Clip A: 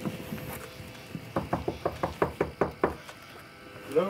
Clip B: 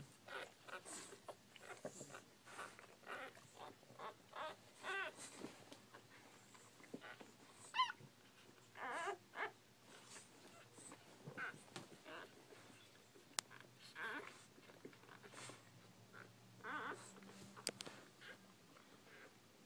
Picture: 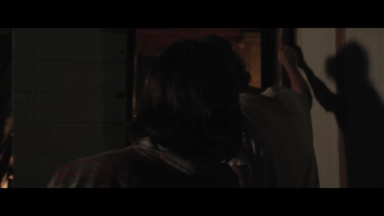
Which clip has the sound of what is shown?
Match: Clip A